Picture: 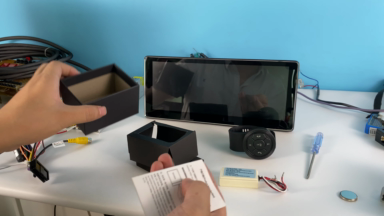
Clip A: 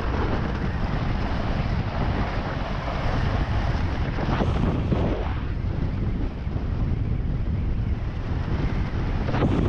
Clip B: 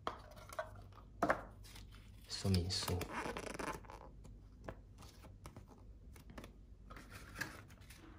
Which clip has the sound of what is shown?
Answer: B